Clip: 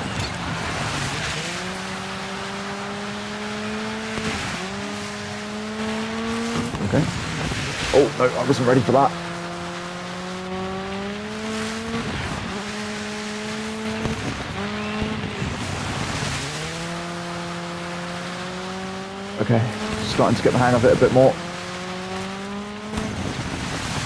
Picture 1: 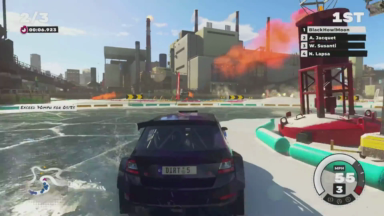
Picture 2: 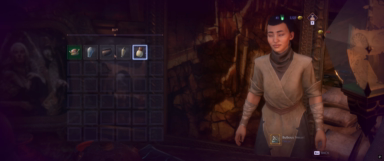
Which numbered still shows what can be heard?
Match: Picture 1